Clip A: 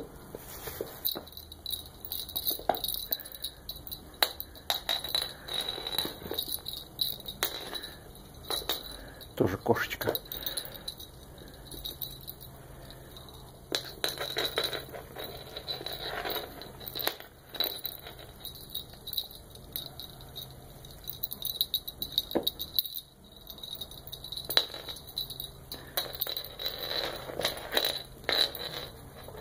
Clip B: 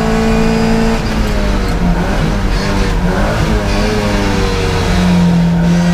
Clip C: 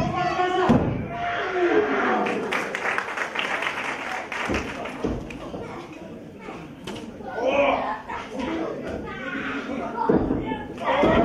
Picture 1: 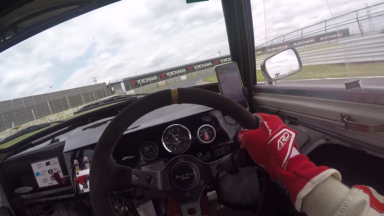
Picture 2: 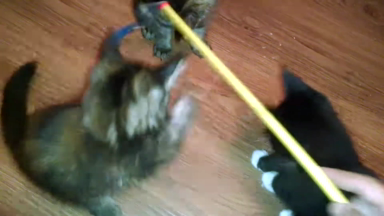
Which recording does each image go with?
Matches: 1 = B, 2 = A